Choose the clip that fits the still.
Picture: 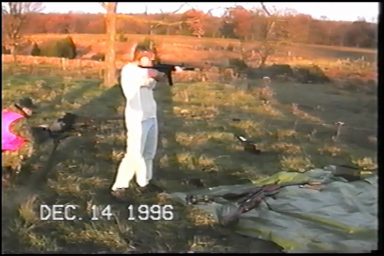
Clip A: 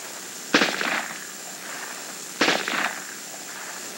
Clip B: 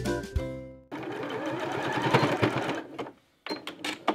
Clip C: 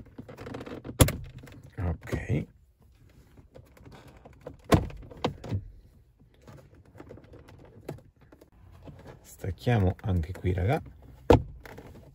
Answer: A